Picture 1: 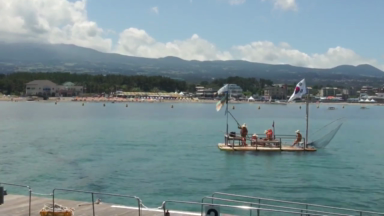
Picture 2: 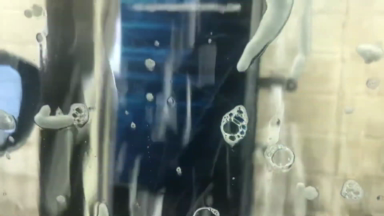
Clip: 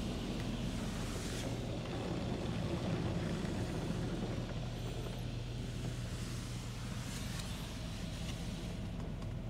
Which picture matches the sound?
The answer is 2